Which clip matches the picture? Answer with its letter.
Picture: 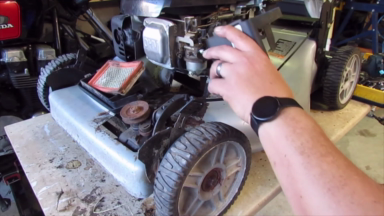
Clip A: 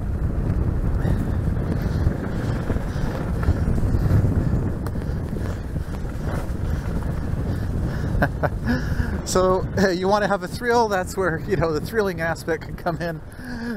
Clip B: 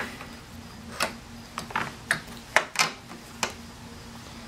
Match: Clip B